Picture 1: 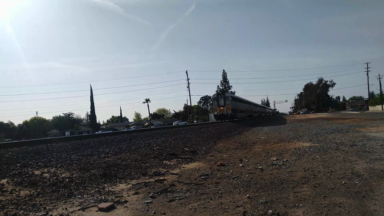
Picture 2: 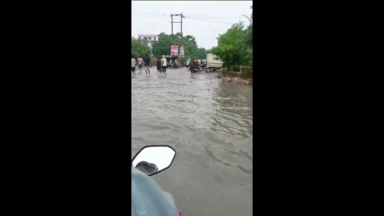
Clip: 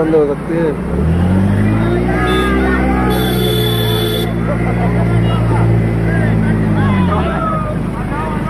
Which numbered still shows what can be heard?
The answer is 2